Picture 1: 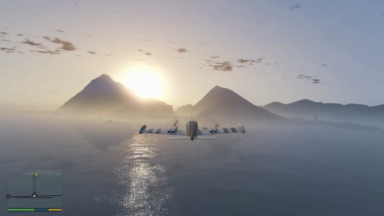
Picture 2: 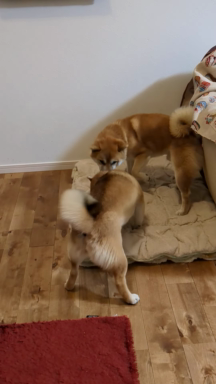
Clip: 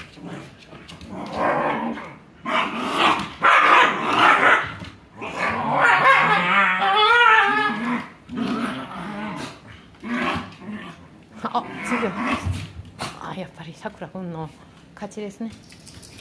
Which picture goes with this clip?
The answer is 2